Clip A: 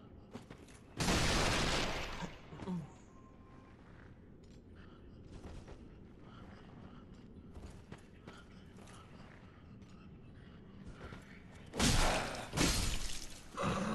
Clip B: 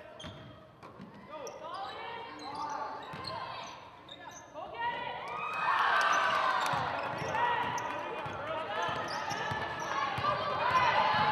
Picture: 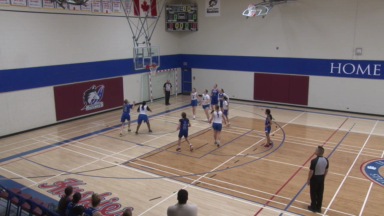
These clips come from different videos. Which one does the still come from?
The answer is B